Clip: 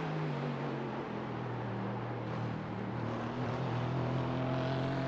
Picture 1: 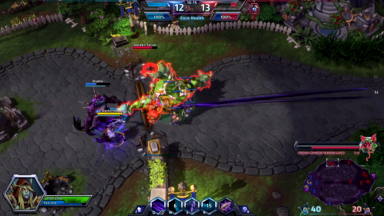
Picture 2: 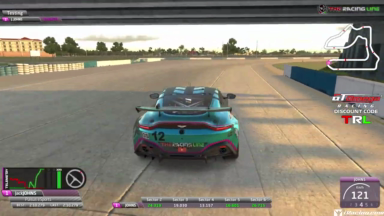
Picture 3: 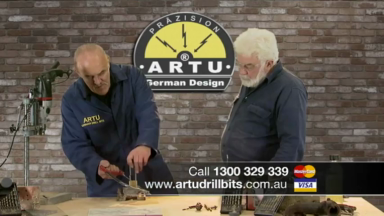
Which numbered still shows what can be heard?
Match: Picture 2